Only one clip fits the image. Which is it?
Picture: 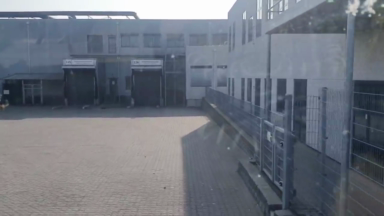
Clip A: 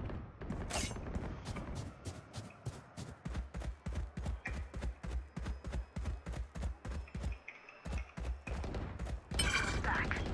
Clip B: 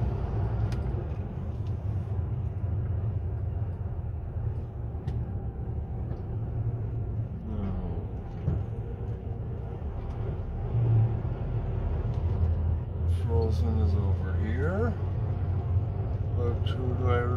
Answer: B